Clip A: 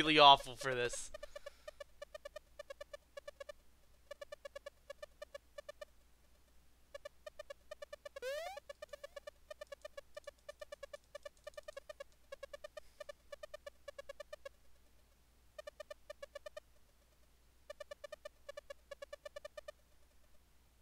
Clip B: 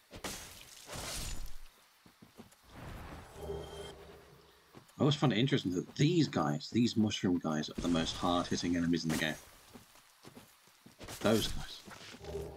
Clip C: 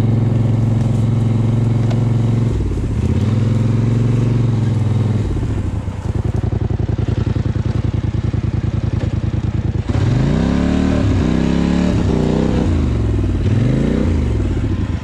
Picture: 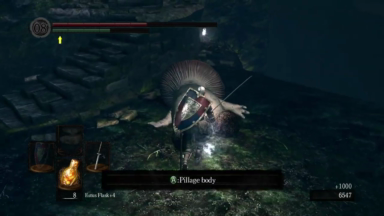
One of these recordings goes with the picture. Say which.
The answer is B